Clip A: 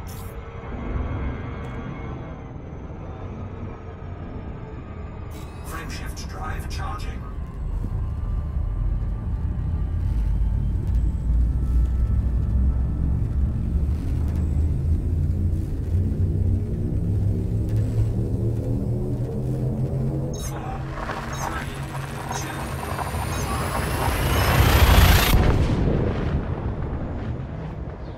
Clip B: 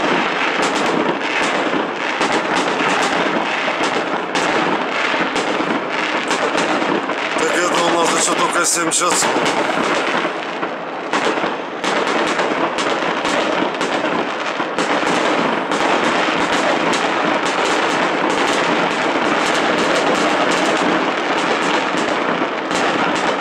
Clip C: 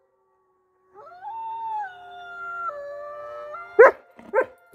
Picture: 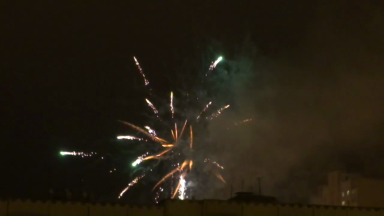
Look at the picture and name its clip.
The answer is B